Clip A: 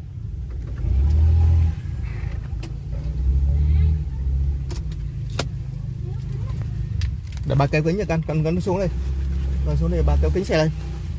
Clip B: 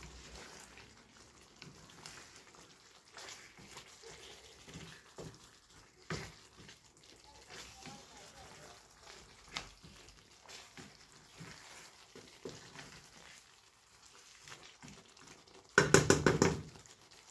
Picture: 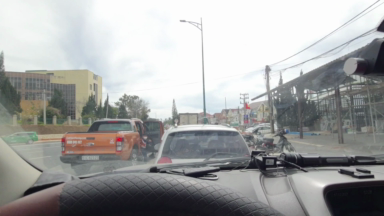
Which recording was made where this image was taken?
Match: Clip A